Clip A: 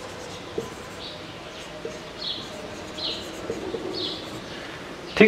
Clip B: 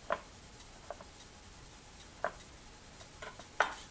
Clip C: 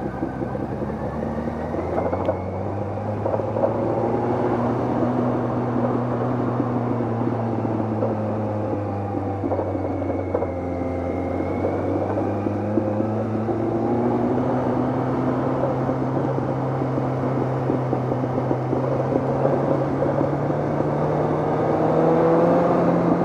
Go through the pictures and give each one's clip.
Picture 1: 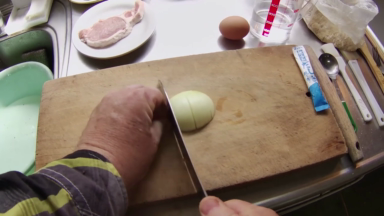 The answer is B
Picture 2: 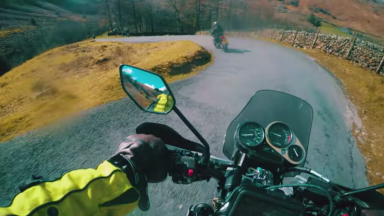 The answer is C